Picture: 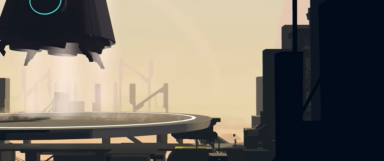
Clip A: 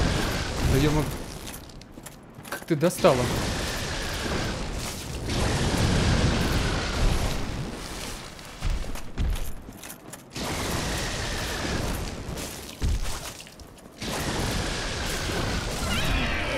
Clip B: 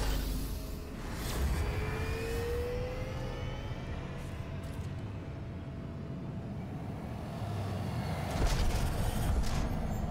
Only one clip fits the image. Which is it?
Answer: B